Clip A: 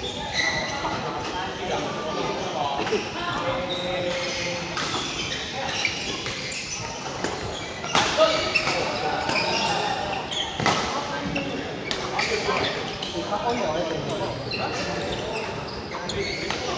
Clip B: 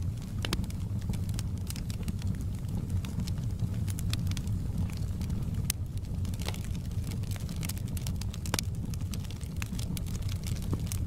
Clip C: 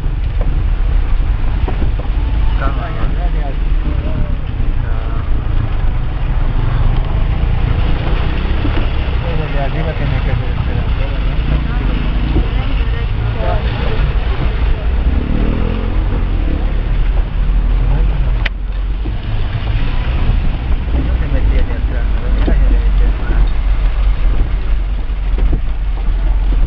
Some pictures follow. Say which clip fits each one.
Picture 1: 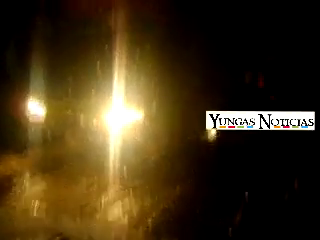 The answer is C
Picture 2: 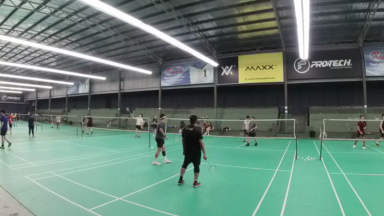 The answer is A